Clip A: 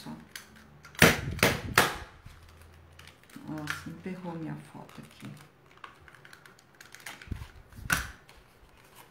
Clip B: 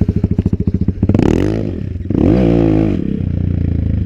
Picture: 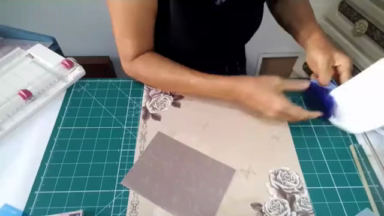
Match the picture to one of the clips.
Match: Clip A